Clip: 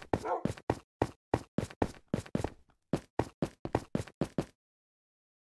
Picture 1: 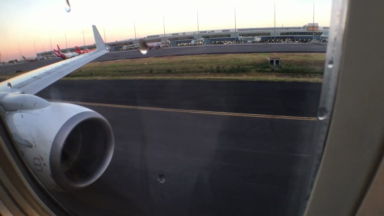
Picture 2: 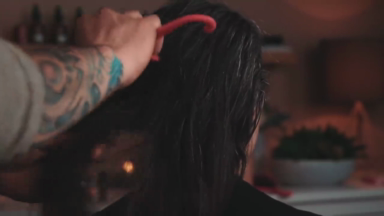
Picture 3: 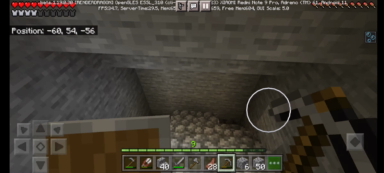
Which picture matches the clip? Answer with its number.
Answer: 3